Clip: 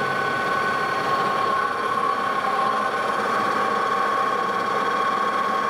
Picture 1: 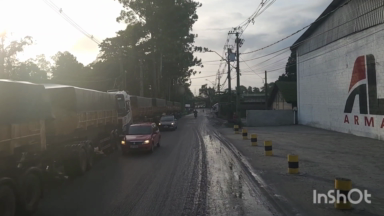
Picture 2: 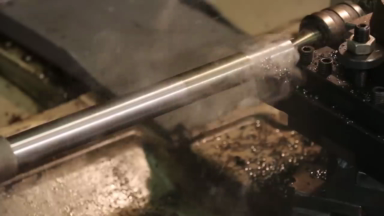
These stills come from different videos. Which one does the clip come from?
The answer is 2